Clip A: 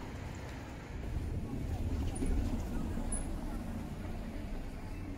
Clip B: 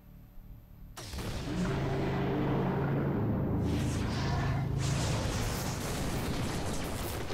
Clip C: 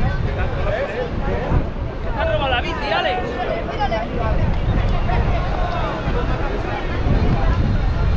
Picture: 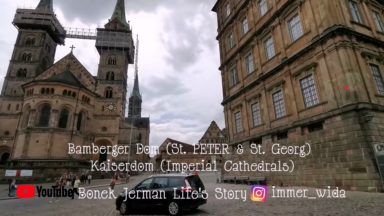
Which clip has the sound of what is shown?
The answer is A